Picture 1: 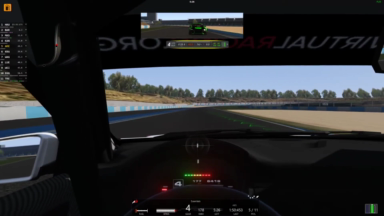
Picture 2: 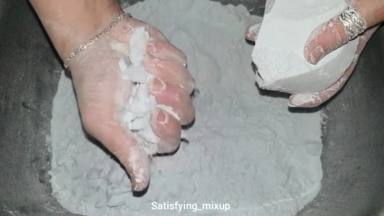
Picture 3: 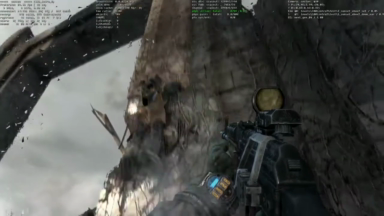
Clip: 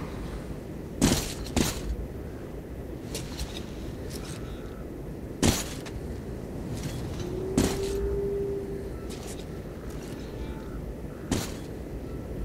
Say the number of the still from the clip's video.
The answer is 3